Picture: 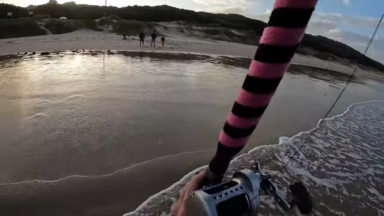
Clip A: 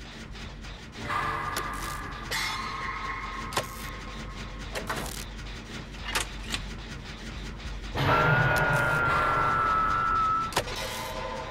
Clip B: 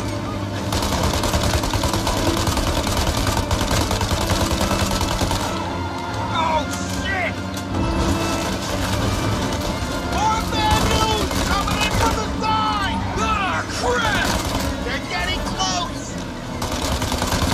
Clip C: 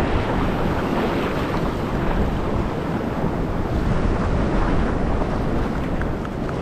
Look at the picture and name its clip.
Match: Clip C